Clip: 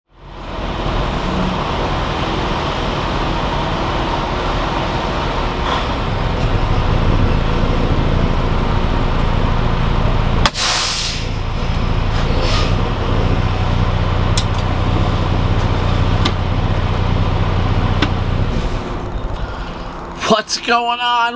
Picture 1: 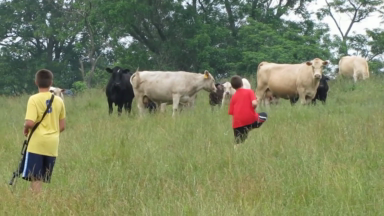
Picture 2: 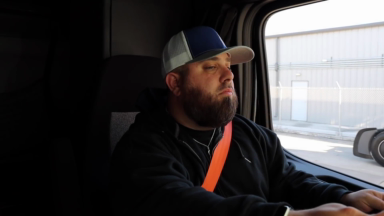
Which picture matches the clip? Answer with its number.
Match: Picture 2